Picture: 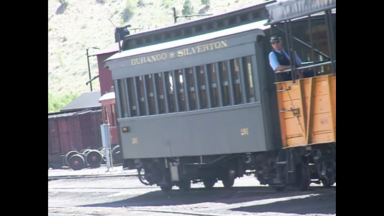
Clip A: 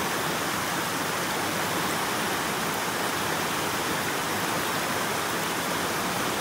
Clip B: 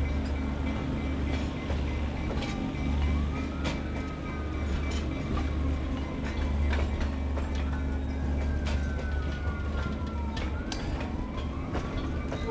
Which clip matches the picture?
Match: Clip B